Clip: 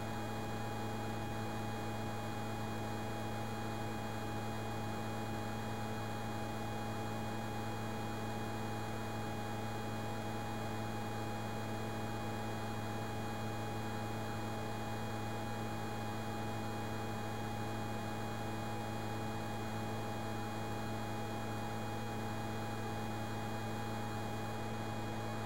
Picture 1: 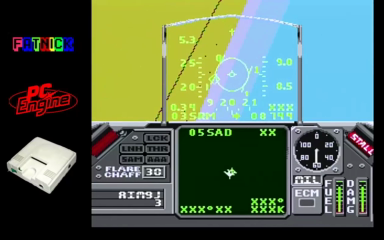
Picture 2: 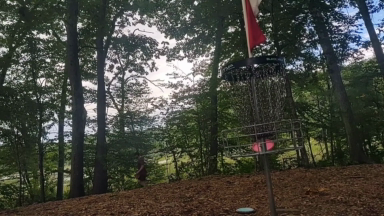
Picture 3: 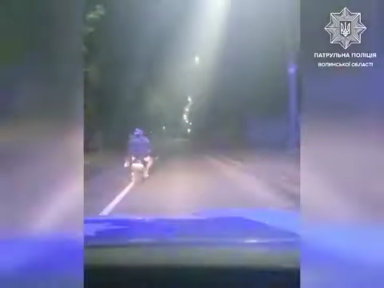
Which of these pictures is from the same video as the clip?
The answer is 1